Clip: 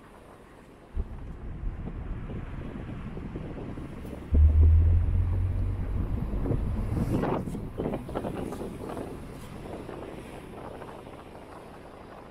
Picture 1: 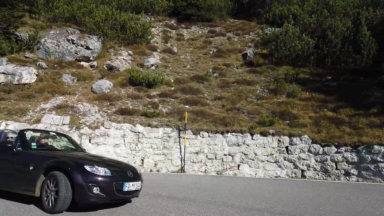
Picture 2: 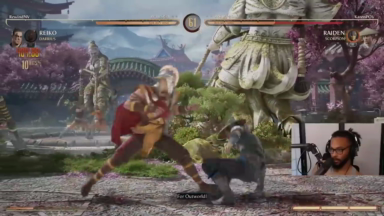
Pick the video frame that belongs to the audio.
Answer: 1